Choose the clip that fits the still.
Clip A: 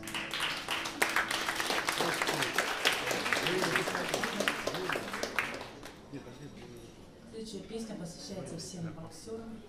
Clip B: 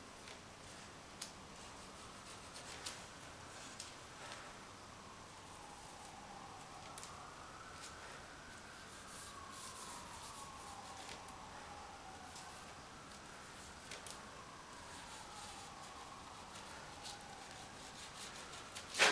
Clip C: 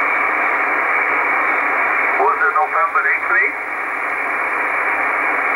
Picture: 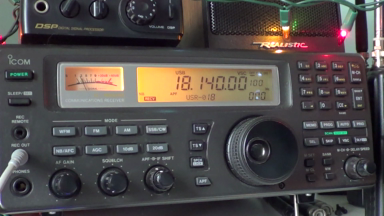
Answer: C